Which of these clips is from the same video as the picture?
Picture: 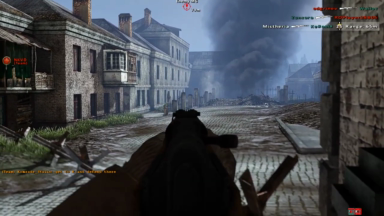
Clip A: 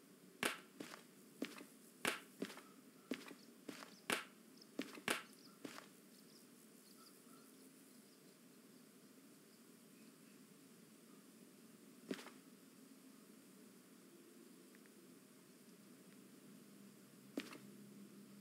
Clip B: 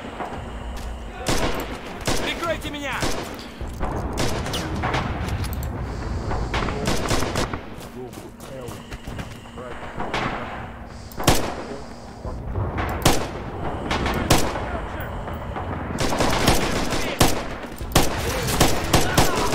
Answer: B